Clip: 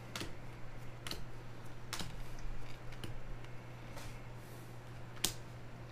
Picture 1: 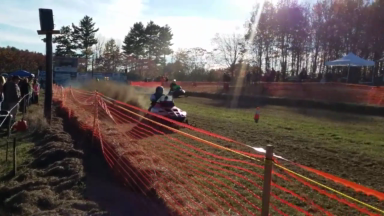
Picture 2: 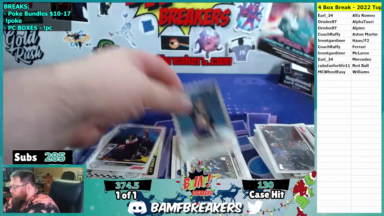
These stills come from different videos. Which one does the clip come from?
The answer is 2